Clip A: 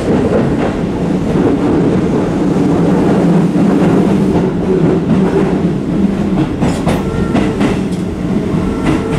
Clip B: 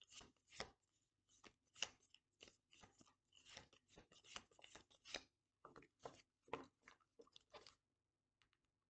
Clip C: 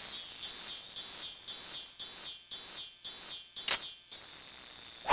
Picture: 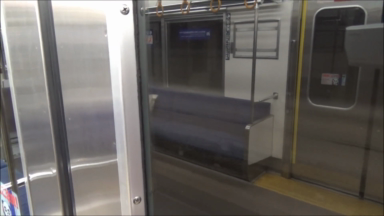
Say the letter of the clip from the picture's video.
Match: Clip A